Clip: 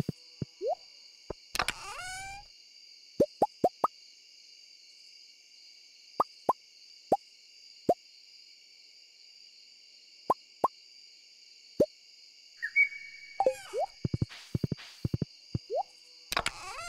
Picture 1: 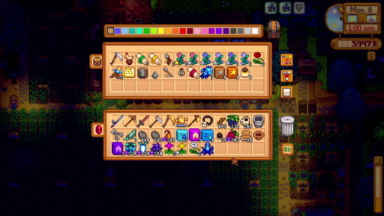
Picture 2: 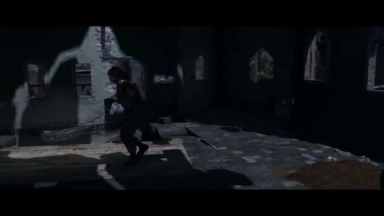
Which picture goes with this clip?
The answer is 1